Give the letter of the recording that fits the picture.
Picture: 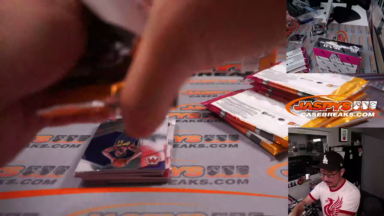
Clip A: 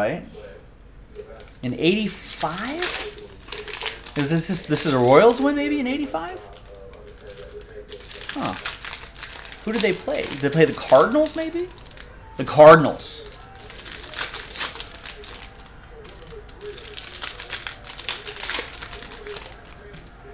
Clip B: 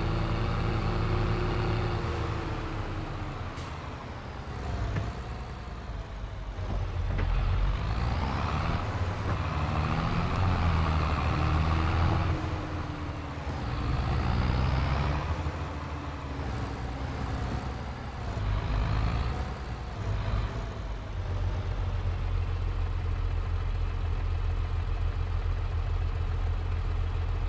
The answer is A